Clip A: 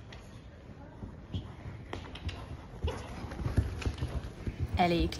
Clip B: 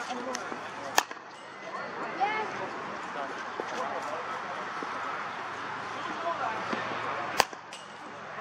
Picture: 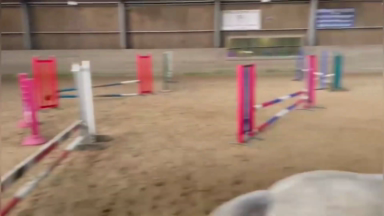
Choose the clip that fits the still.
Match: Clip A